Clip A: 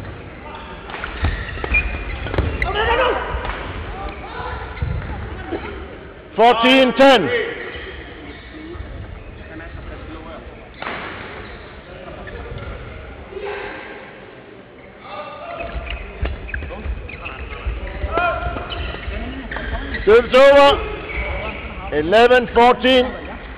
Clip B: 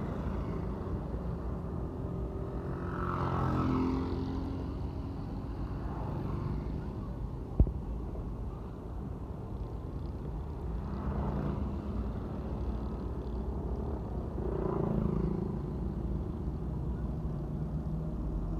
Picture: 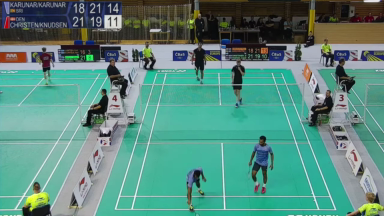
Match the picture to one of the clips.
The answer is A